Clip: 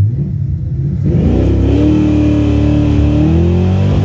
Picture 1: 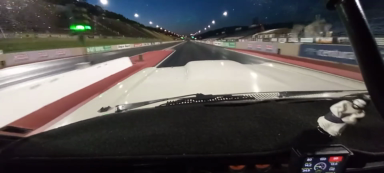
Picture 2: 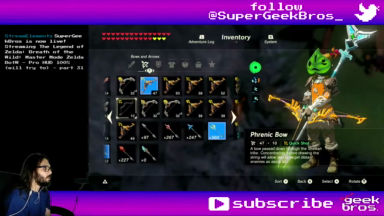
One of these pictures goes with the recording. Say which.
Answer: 1